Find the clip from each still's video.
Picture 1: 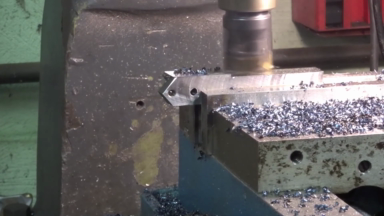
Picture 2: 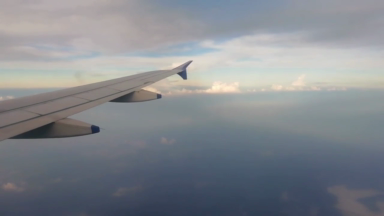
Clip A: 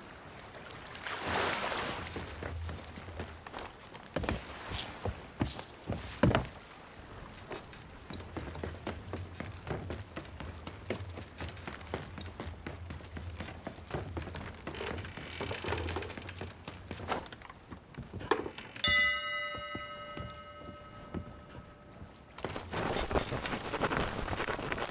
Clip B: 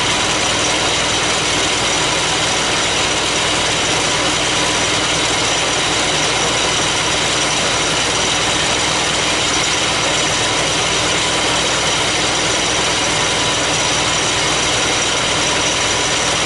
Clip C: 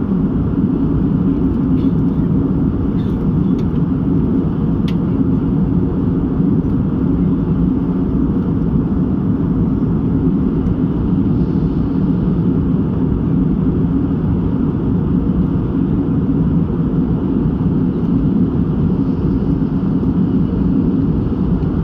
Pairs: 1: B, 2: C